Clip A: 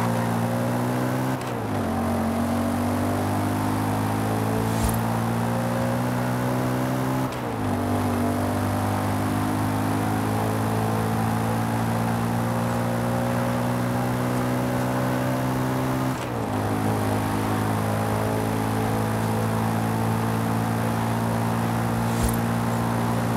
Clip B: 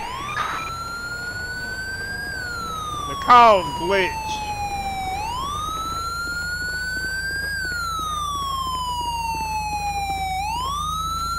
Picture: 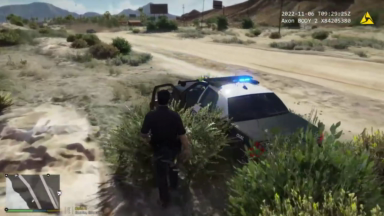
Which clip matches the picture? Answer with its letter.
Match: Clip B